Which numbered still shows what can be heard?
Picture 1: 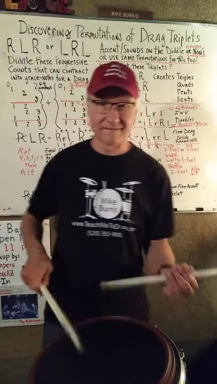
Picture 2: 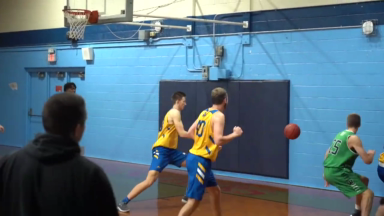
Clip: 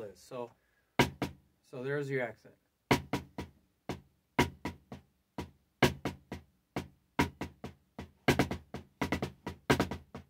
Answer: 1